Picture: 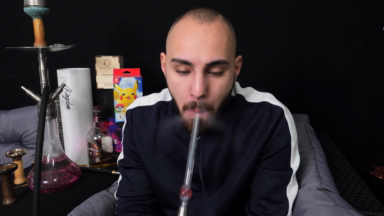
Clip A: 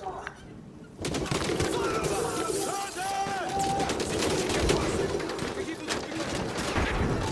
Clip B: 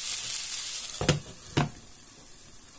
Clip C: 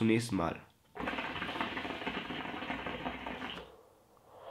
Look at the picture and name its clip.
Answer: C